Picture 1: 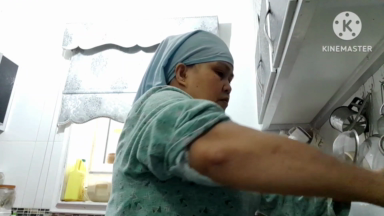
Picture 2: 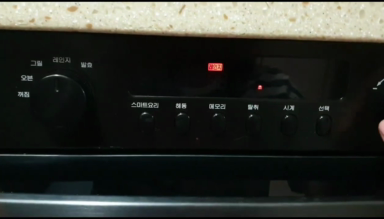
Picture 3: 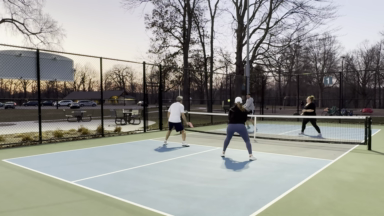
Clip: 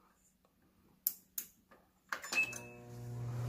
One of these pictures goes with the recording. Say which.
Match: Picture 2